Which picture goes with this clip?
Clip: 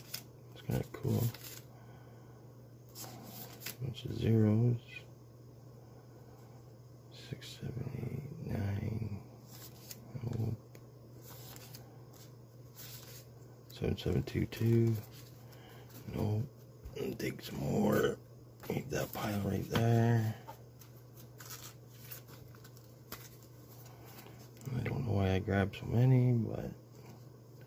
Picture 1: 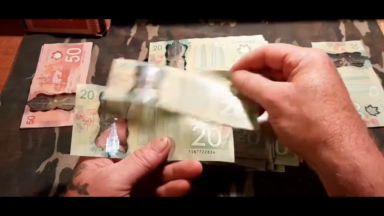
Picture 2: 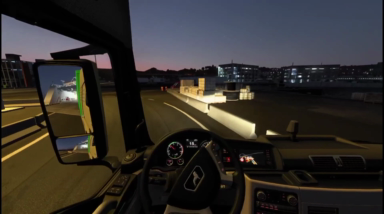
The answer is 1